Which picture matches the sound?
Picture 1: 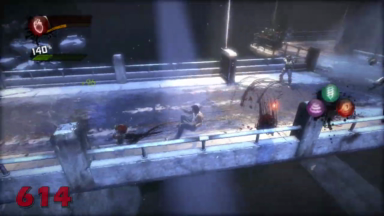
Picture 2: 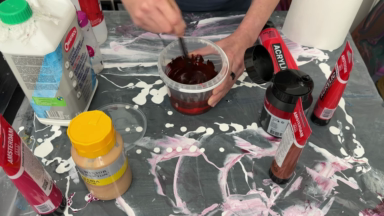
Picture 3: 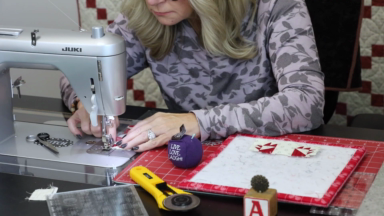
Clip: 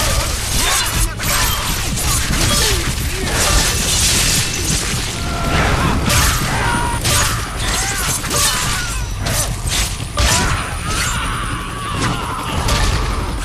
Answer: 1